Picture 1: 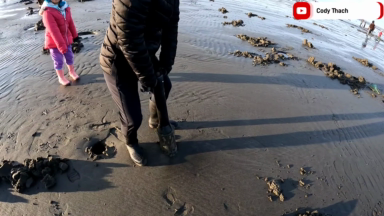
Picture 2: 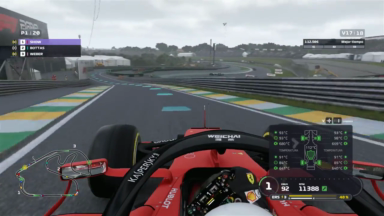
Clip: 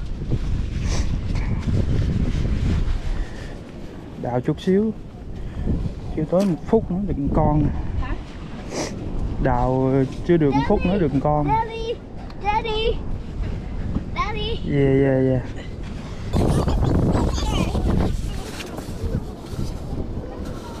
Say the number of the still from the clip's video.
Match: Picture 1